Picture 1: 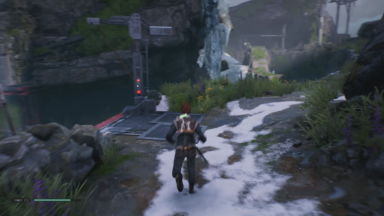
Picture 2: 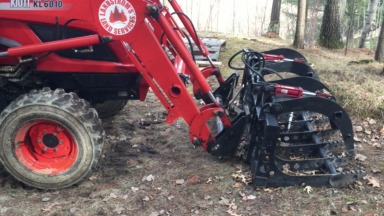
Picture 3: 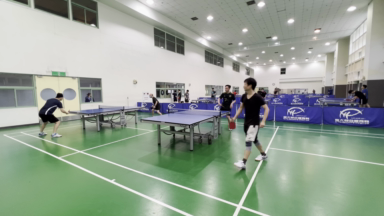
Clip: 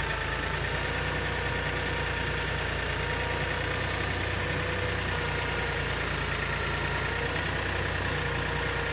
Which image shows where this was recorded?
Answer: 2